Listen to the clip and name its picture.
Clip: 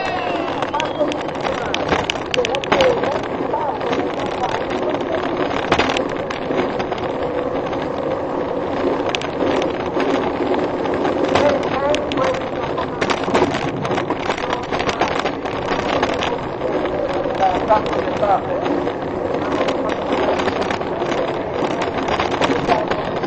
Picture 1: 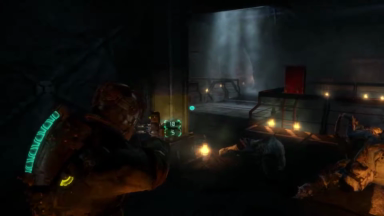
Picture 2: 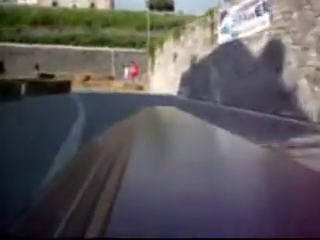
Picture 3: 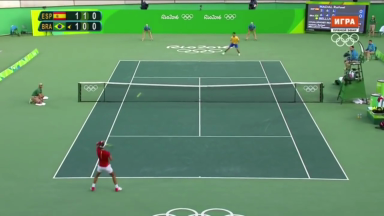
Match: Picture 2